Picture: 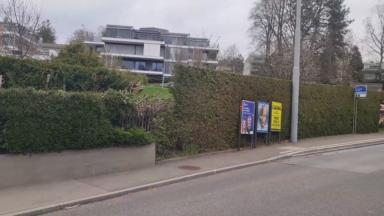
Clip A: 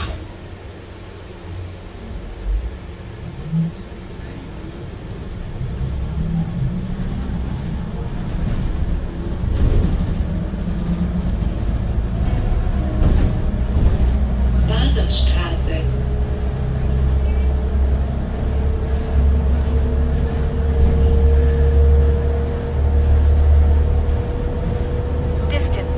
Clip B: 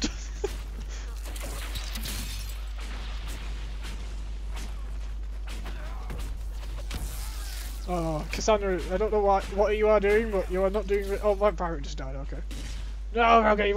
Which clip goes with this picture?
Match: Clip A